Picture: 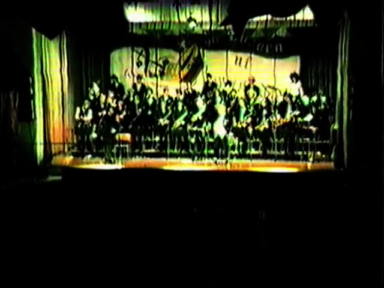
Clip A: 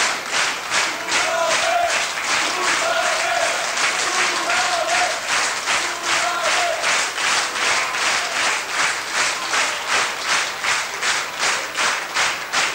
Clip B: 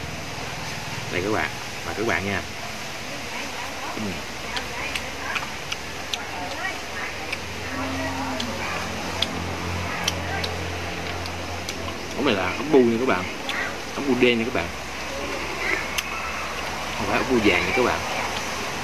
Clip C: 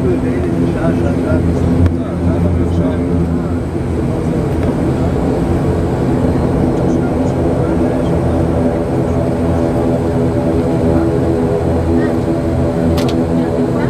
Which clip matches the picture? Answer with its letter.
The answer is A